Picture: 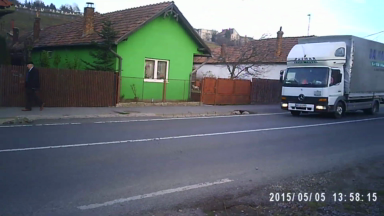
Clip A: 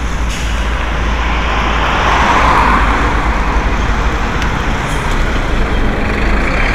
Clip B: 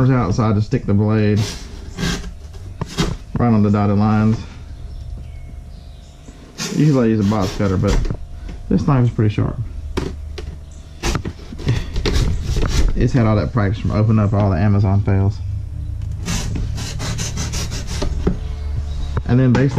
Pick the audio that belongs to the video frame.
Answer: A